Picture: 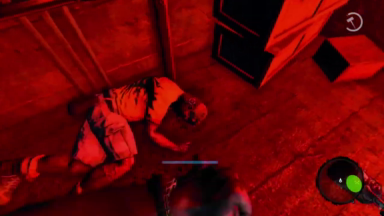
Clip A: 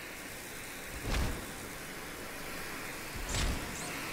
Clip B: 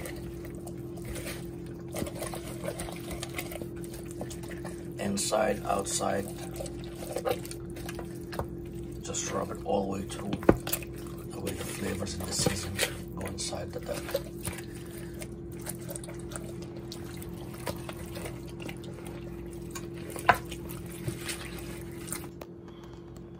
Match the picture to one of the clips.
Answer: A